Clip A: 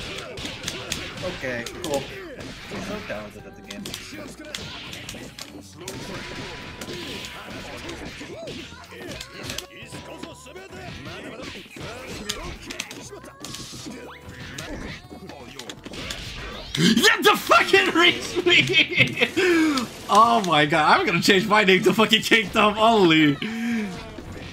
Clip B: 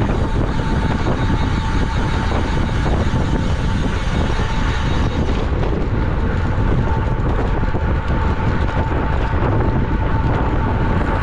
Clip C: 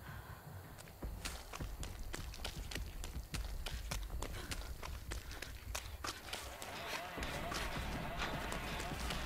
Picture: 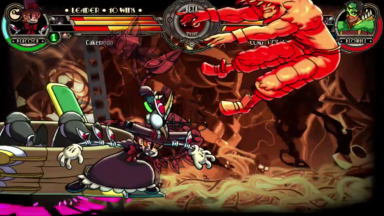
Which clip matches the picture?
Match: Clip A